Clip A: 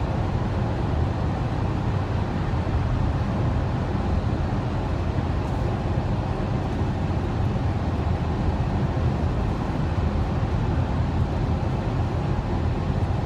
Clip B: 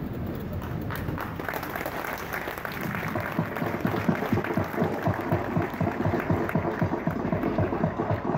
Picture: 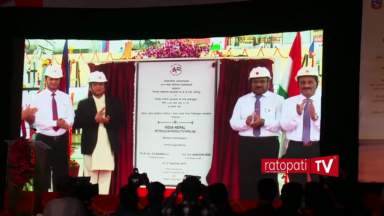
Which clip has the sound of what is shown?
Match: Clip B